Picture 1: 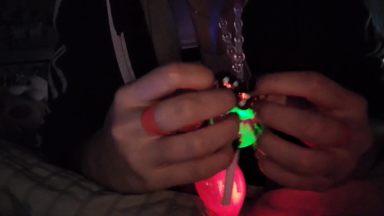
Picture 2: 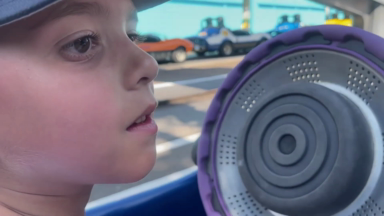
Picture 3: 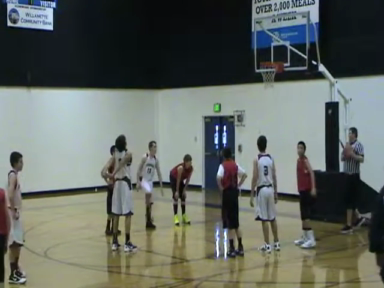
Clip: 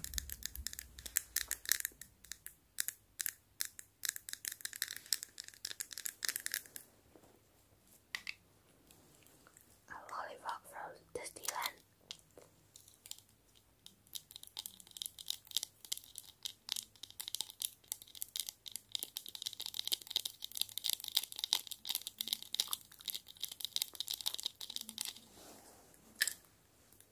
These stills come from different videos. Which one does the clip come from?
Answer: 1